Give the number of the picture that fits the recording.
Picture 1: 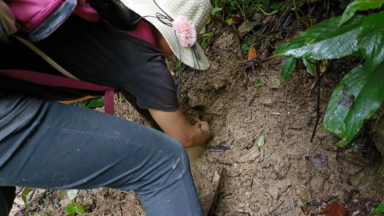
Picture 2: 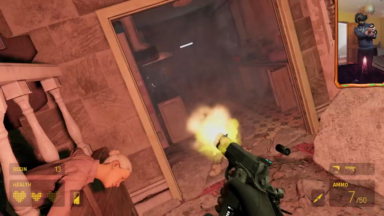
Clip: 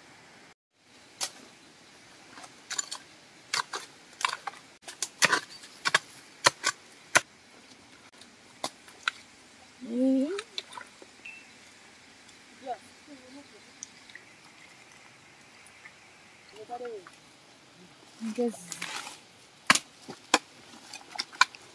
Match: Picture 1